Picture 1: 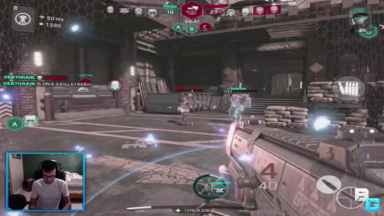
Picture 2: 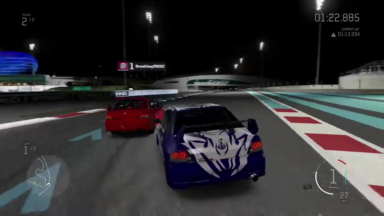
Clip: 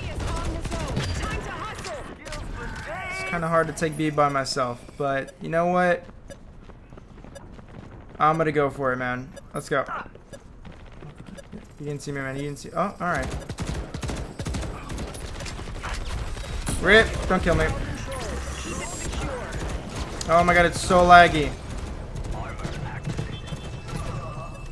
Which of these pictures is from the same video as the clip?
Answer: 1